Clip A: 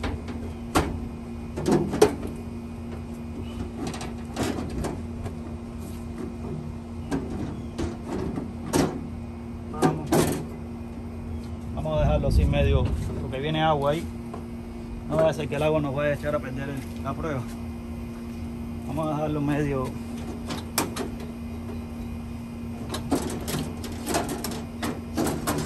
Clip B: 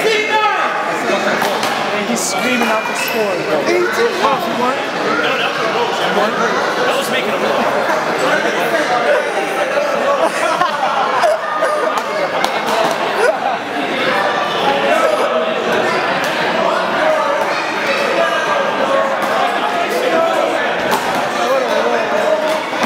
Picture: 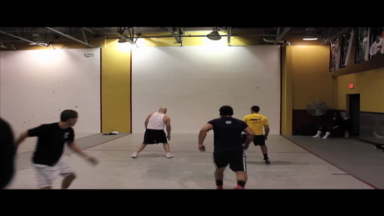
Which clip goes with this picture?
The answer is B